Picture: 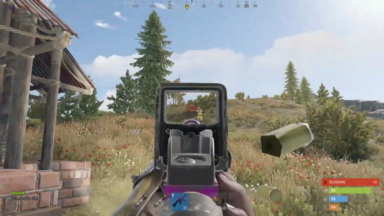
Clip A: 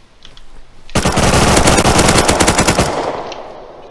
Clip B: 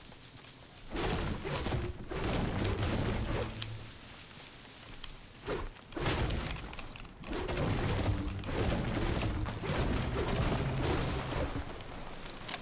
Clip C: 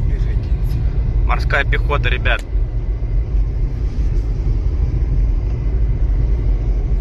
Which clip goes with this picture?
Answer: A